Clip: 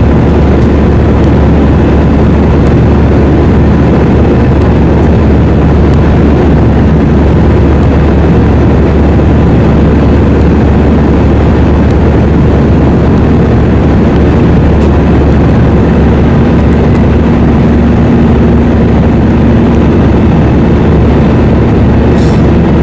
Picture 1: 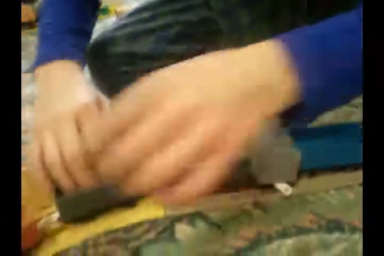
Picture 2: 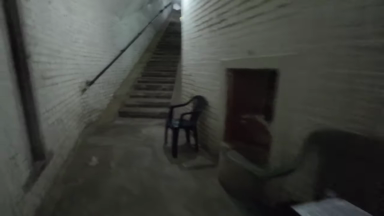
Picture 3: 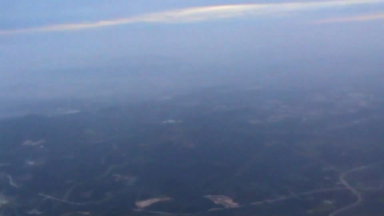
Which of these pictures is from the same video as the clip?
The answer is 3